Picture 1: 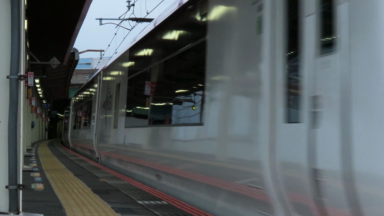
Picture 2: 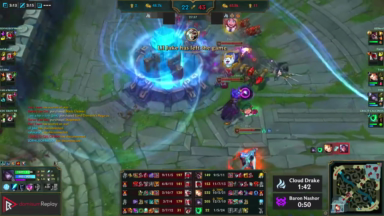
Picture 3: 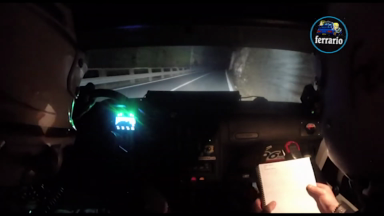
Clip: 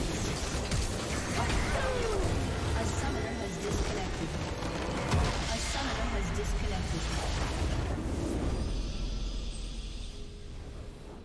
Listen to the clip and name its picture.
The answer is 2